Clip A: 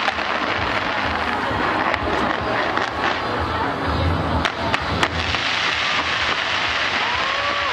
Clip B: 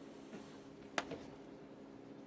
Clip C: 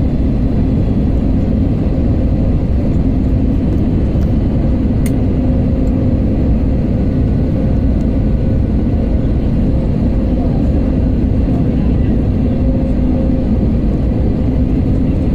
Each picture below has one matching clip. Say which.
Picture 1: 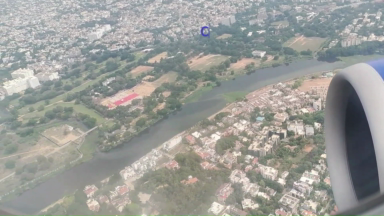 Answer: C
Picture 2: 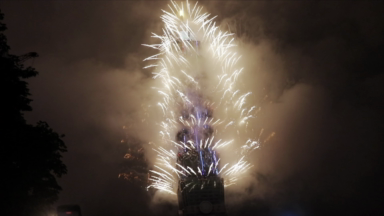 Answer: A